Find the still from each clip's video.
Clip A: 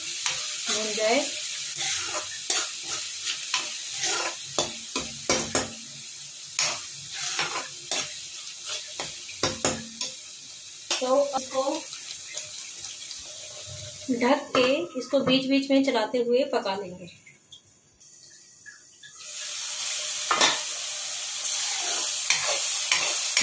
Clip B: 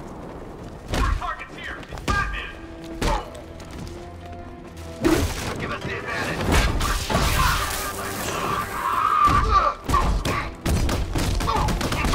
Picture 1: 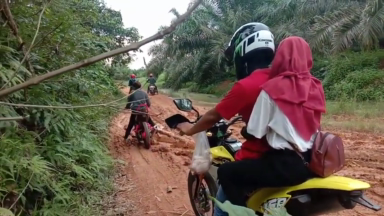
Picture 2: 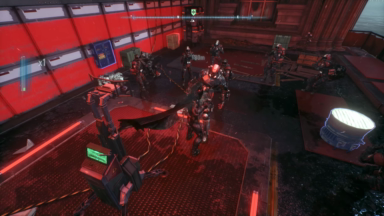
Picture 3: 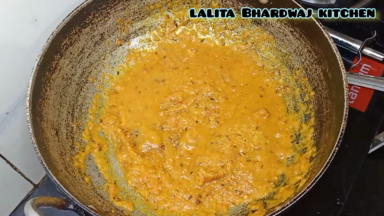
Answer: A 3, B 2